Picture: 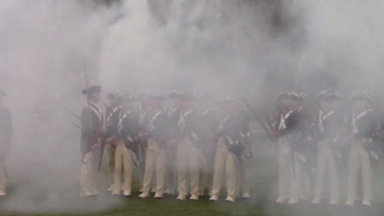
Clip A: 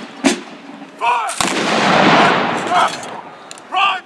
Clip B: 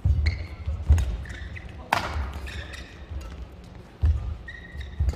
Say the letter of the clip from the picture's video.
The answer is A